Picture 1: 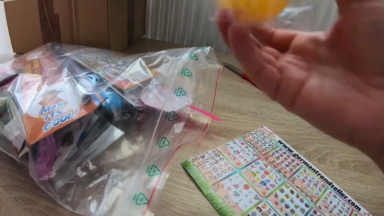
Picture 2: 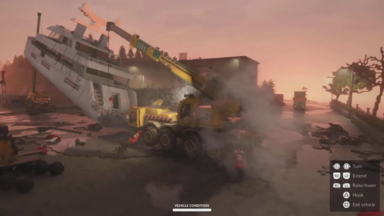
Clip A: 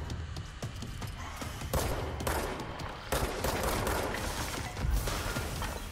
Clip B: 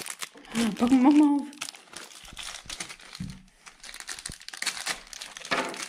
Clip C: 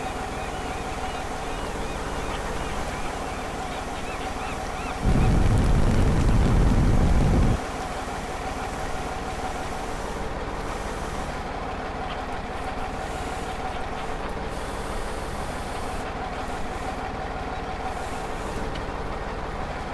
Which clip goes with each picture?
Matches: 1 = B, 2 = C